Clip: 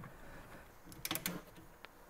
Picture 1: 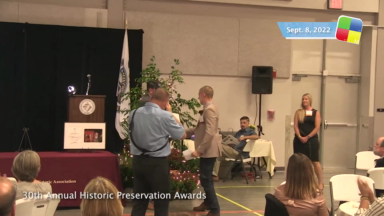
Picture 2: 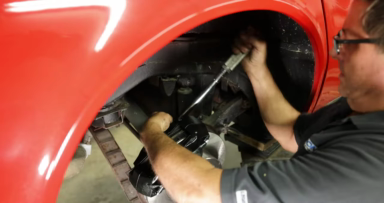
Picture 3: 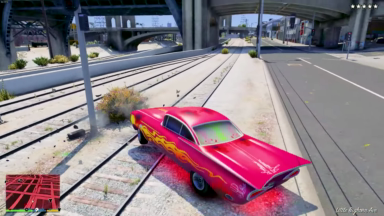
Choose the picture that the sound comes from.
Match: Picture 2